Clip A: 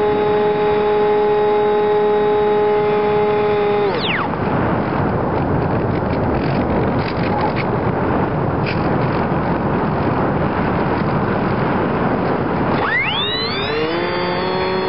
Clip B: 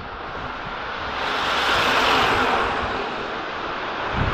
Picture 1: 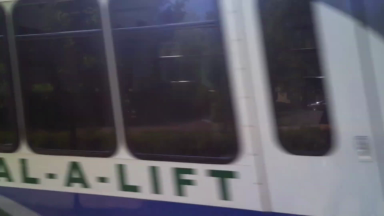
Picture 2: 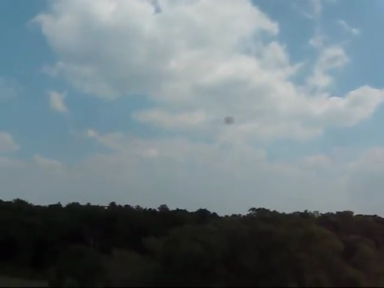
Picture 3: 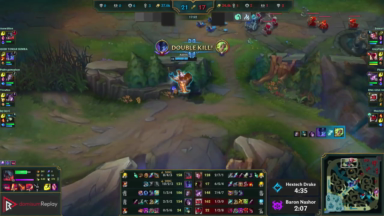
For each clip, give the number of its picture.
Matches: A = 2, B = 1